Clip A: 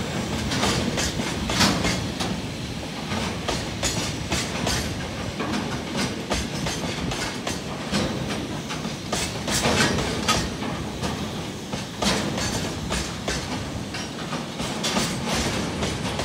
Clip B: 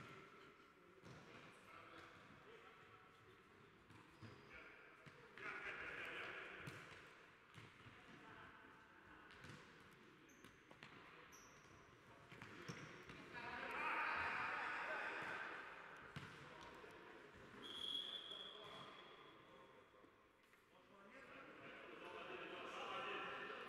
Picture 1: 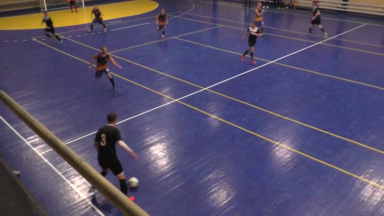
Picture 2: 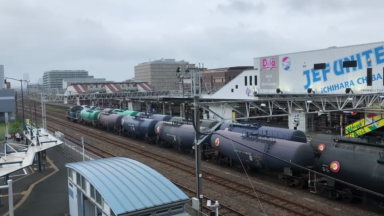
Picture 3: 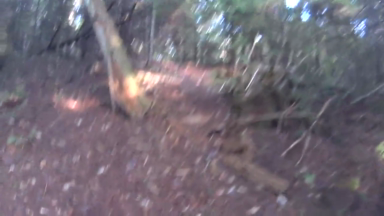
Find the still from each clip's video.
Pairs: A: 2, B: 1